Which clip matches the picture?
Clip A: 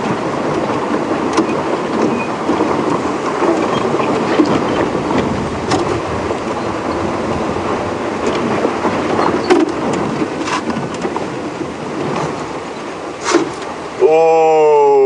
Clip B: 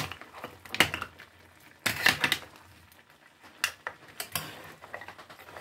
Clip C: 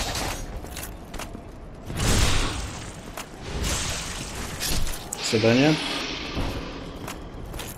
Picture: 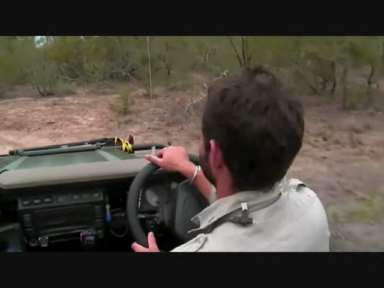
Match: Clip A